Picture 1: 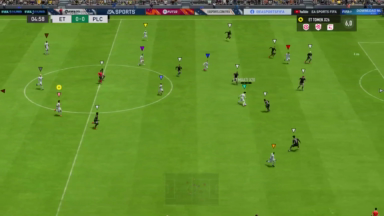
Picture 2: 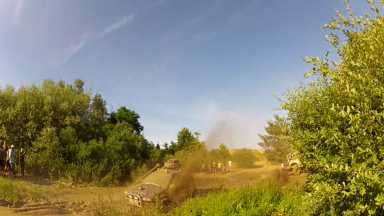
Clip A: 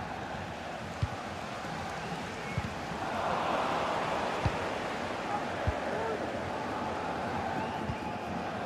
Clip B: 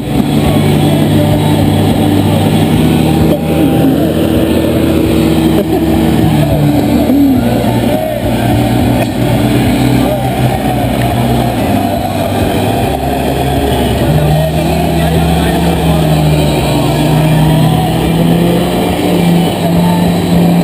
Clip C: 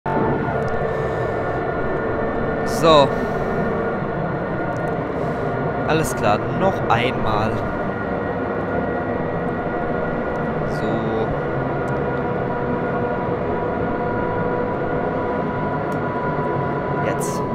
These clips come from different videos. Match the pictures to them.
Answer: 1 A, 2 B